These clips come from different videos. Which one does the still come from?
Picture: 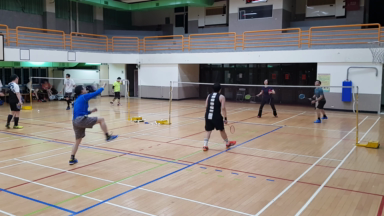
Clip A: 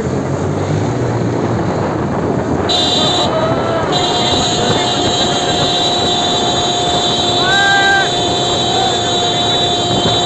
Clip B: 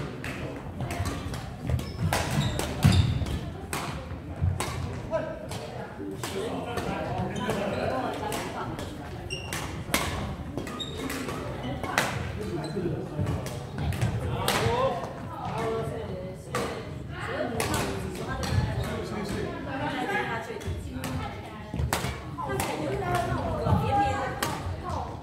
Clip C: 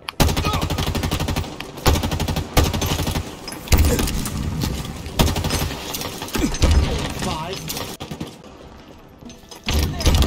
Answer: B